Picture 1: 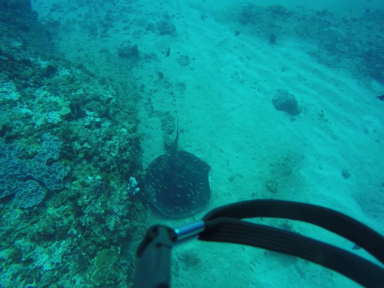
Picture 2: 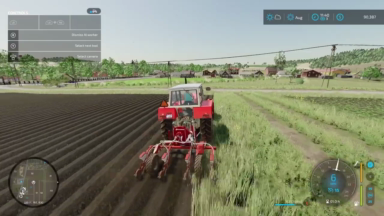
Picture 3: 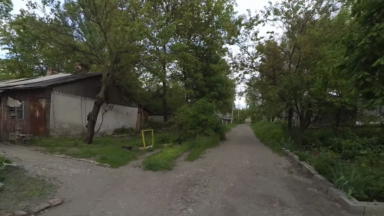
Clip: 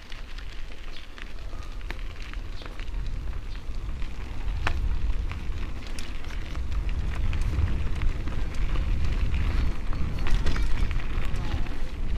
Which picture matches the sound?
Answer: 3